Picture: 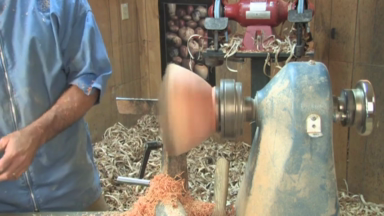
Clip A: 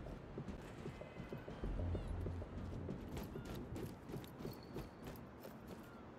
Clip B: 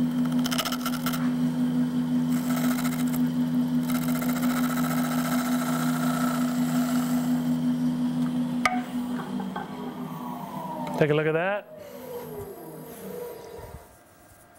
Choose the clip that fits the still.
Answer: B